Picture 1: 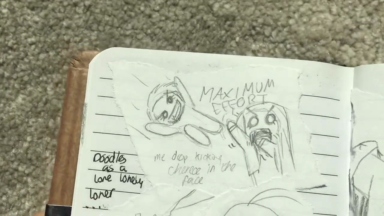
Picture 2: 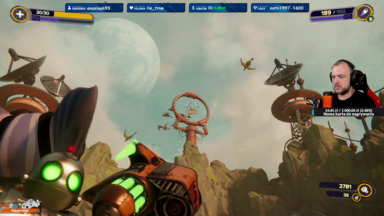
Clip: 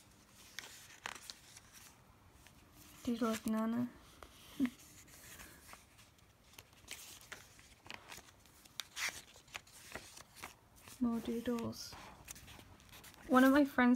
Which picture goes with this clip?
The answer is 1